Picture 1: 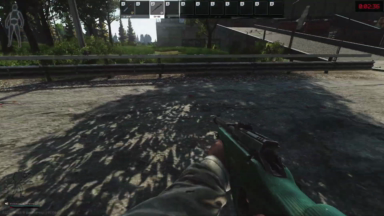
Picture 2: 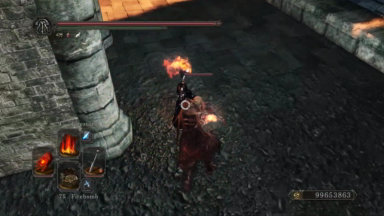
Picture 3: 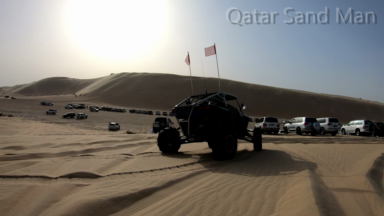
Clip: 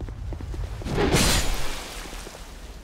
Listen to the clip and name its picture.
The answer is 2